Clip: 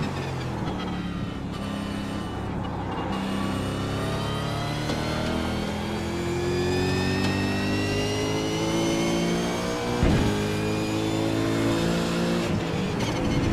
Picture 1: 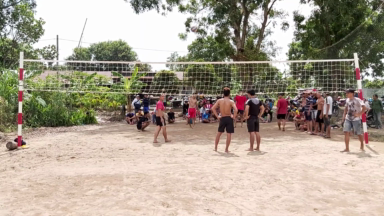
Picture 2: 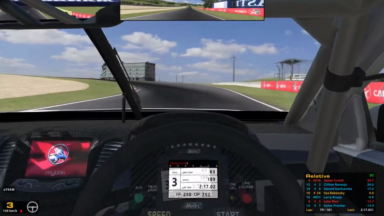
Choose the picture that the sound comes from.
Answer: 2